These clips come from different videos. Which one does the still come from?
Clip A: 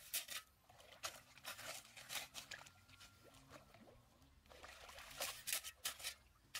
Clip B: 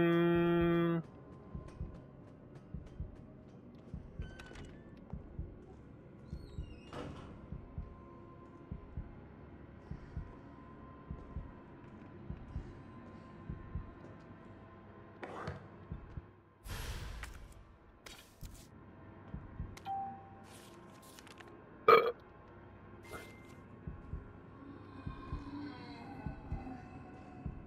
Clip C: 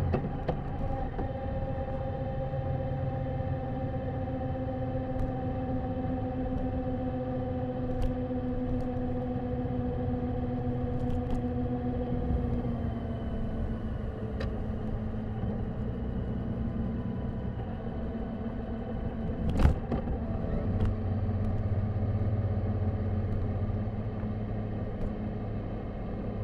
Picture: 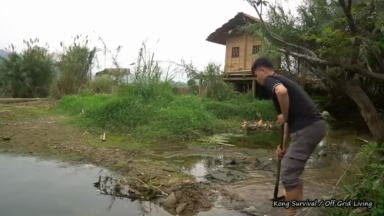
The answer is A